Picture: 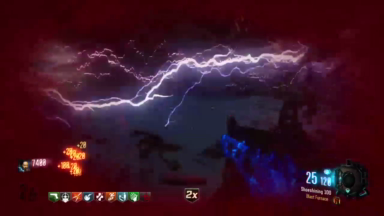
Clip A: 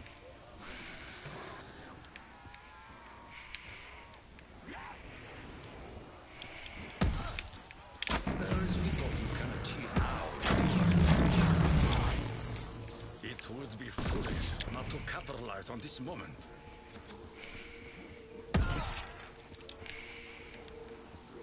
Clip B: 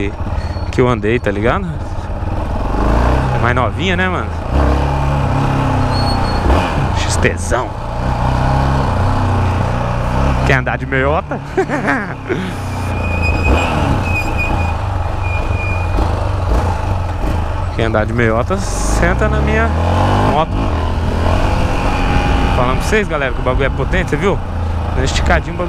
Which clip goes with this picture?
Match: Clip A